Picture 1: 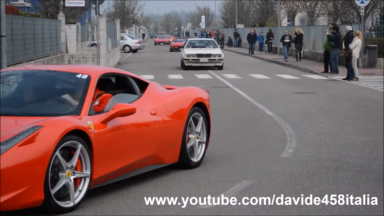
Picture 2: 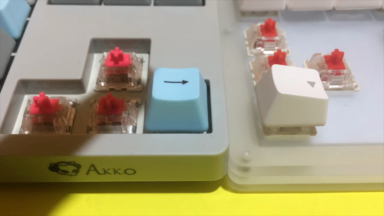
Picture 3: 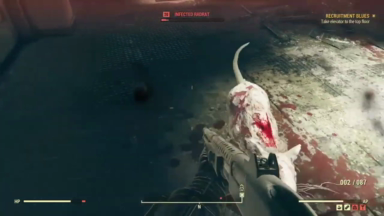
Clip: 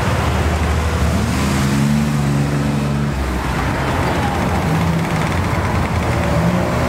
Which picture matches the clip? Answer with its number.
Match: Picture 1